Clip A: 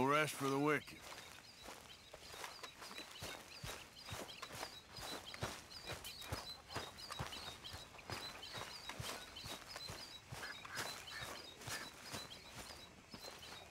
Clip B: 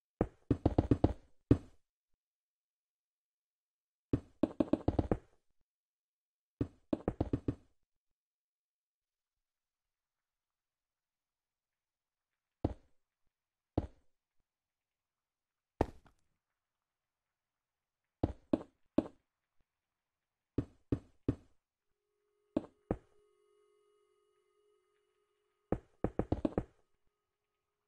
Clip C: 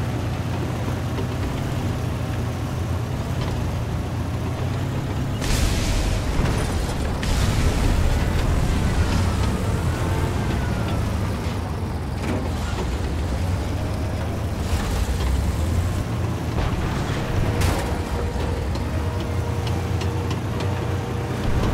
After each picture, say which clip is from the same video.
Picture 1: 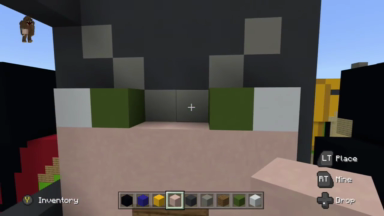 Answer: B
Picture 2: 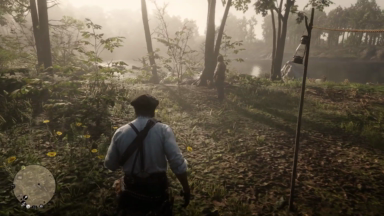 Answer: A